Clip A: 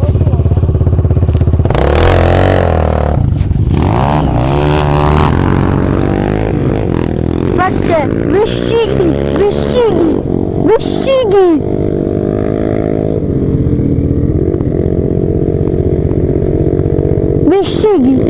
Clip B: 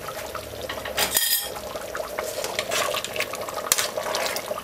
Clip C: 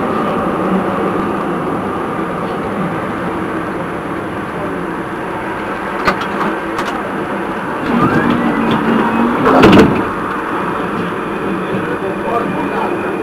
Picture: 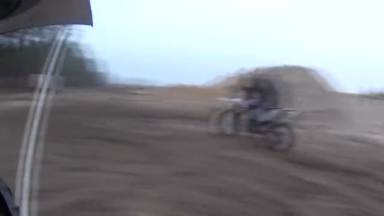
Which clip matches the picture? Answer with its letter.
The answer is A